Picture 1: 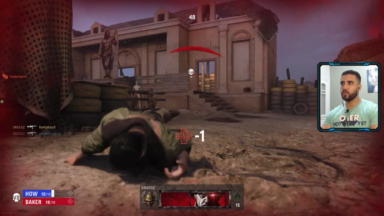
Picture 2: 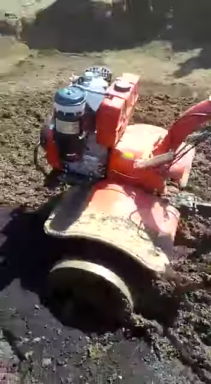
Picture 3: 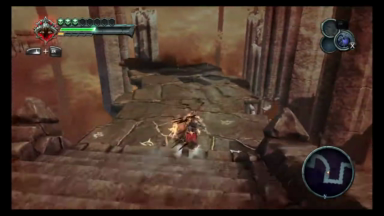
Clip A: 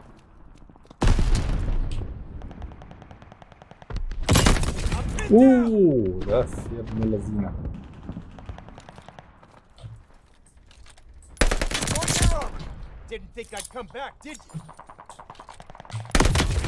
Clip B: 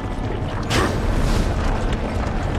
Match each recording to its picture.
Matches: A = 1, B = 3